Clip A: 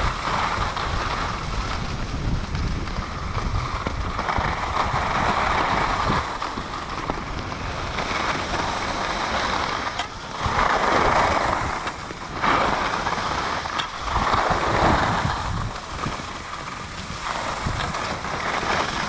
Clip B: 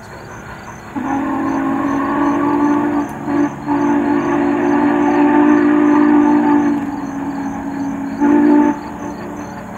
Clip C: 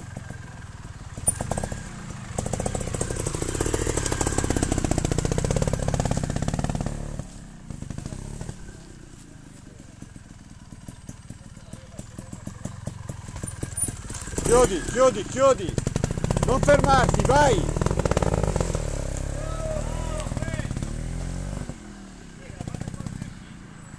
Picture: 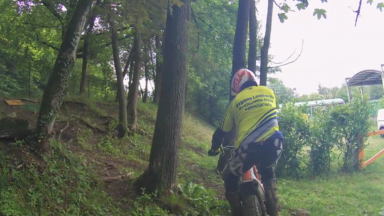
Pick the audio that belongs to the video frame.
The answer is C